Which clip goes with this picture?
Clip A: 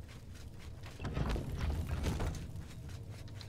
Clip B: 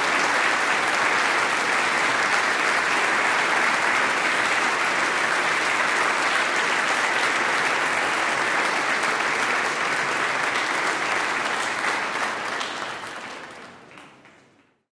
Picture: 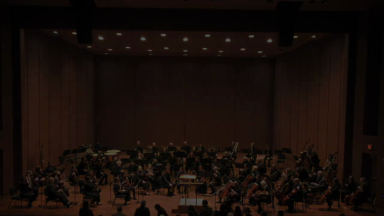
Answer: B